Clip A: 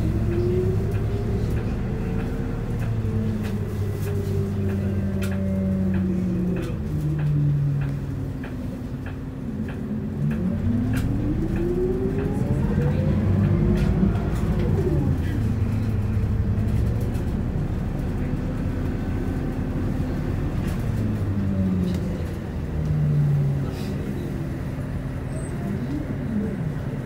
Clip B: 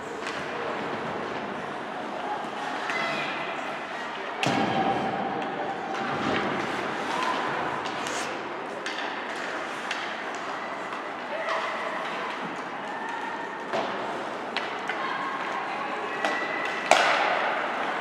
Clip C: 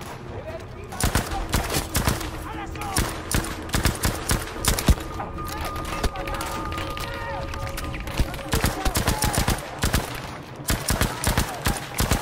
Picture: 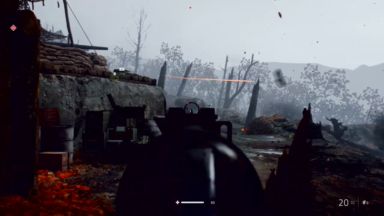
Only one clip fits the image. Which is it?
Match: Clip C